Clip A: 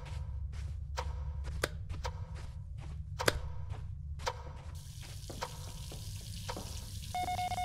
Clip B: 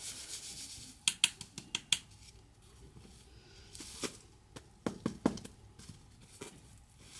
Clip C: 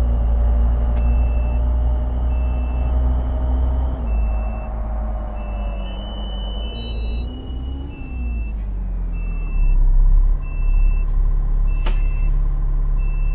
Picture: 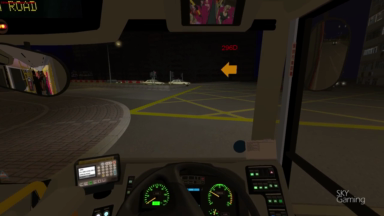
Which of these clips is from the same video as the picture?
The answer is C